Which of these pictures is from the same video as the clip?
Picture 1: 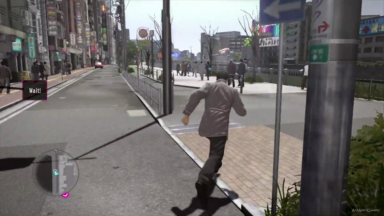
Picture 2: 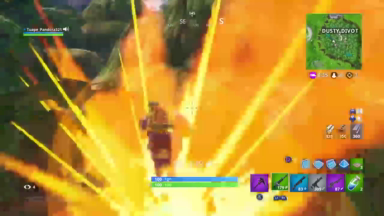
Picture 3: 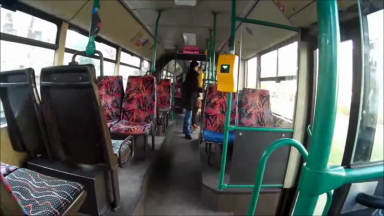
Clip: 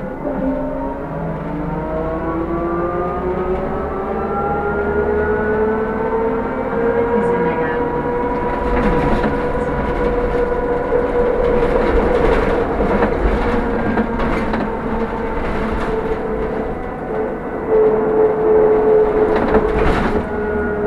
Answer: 3